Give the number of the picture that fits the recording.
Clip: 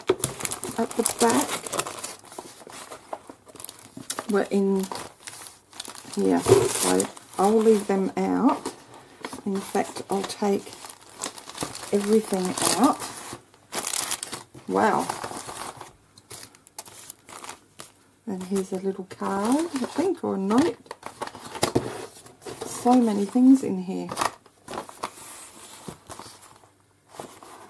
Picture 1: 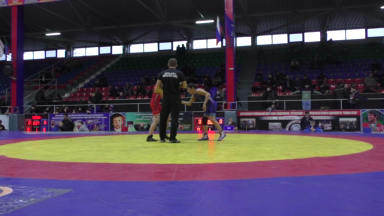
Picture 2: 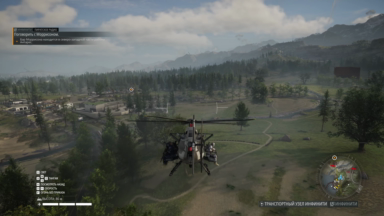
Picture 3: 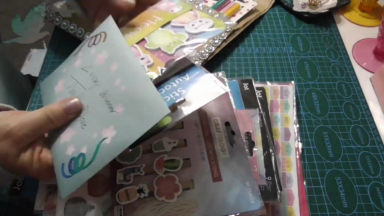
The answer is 3